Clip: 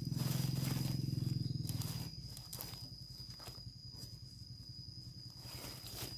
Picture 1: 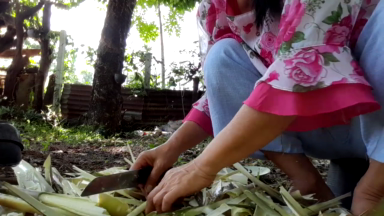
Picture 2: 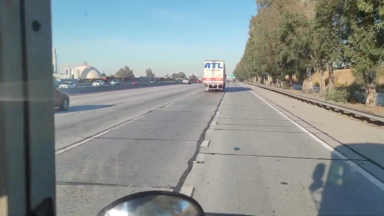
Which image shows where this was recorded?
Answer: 1